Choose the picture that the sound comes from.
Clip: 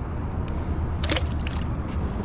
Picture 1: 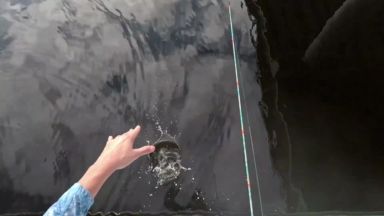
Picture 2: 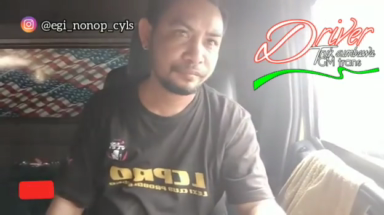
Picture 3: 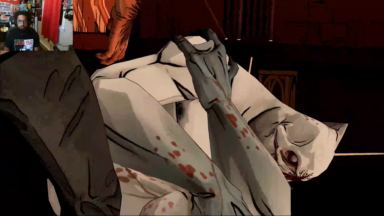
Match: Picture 1